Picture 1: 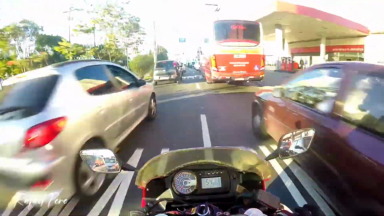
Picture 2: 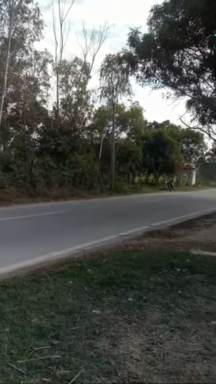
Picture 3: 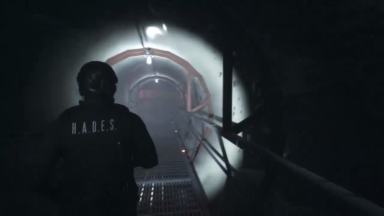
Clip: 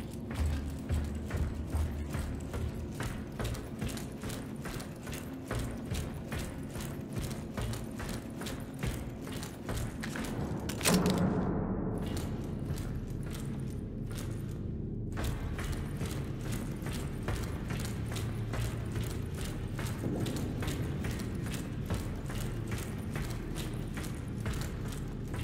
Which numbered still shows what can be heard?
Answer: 3